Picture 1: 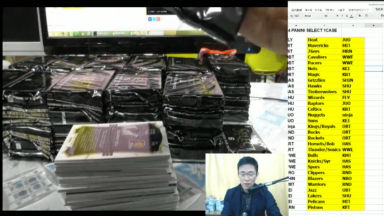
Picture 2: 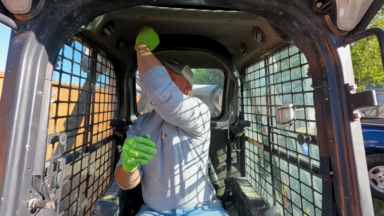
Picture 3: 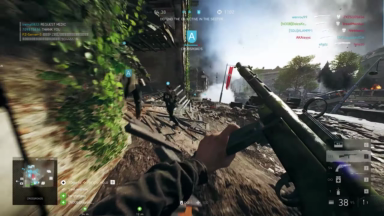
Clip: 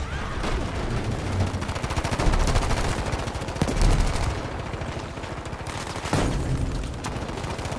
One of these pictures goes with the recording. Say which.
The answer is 3